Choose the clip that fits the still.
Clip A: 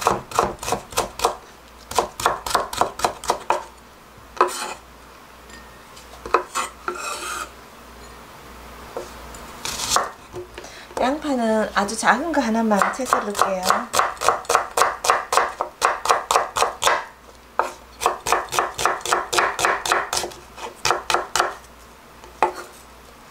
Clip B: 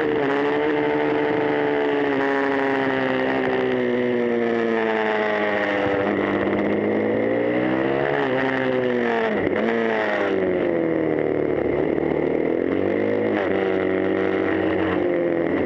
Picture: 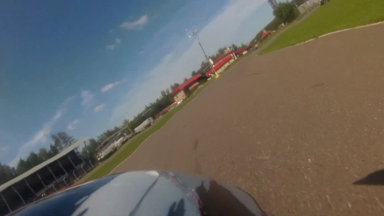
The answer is B